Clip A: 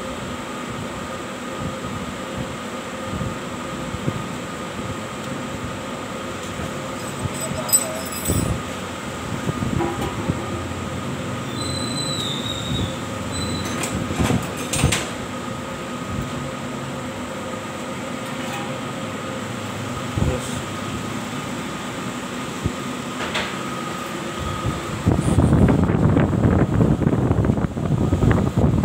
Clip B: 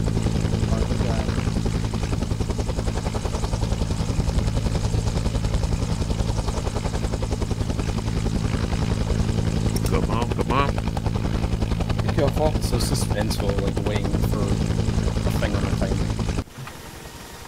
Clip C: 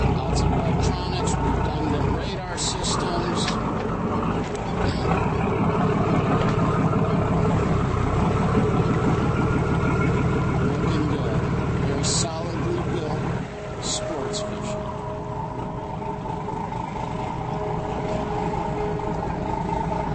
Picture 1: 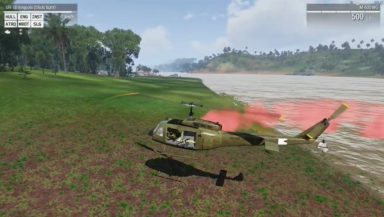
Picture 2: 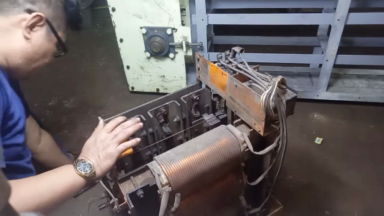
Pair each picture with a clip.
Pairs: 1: B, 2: A